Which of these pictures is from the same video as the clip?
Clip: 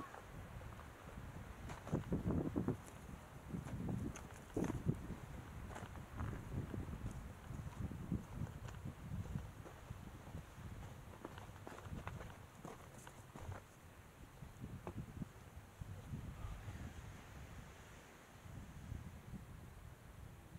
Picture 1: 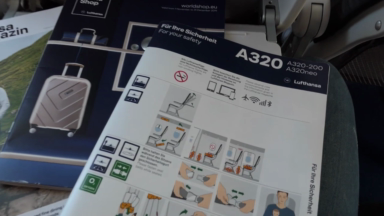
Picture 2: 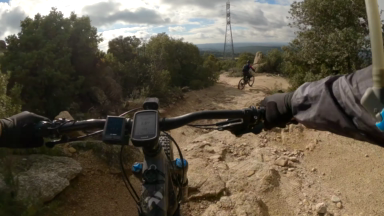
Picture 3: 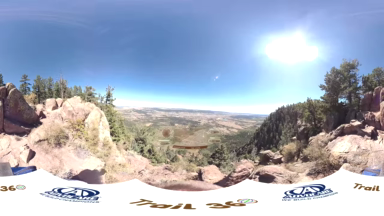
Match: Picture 3